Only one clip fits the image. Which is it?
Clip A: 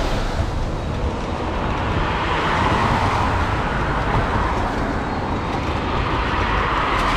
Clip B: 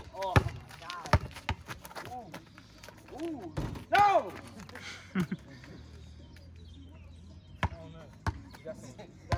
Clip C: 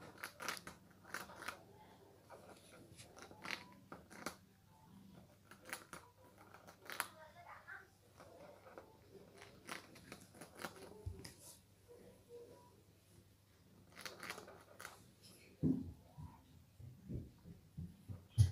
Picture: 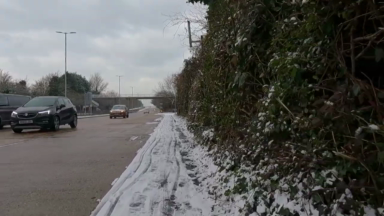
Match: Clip A